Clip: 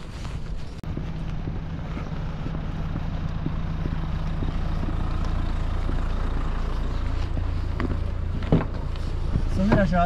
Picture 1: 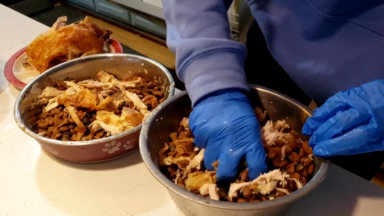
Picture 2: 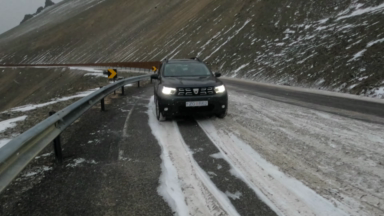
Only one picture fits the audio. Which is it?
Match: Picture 2